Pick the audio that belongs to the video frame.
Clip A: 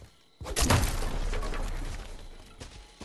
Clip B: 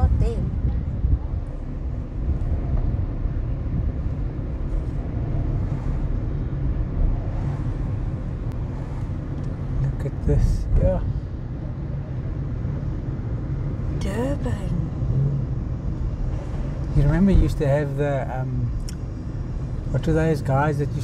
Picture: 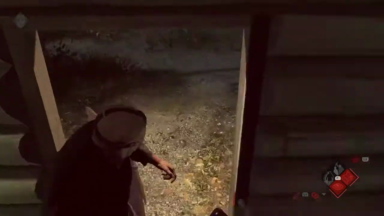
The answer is A